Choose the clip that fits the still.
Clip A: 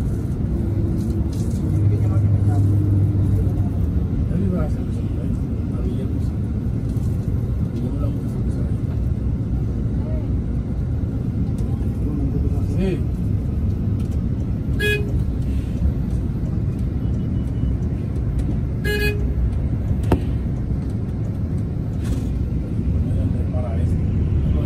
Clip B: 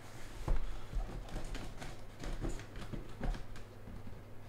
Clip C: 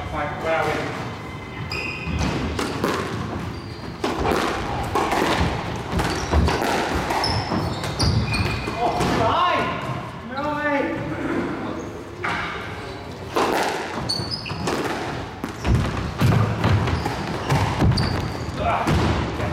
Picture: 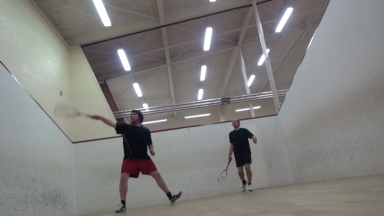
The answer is C